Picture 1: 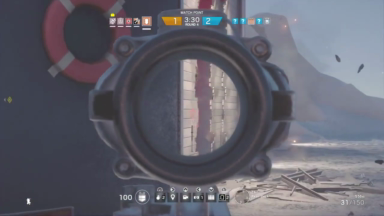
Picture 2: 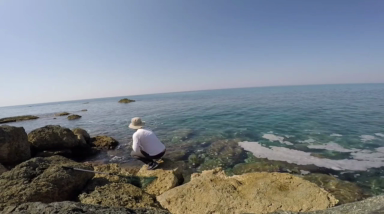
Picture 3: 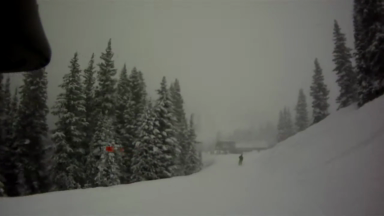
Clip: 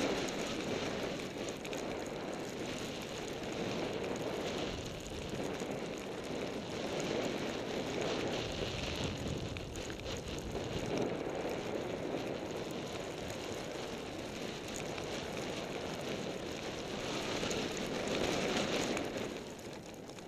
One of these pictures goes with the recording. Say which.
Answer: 3